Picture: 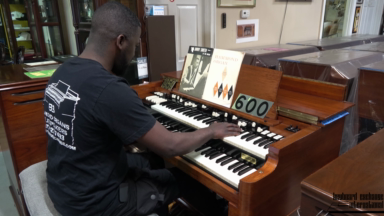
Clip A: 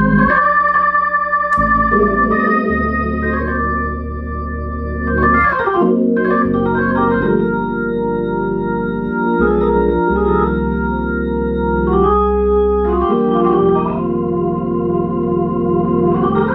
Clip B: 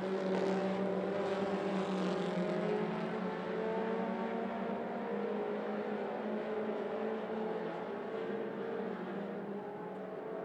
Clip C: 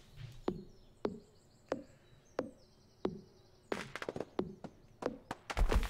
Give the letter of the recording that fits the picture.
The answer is A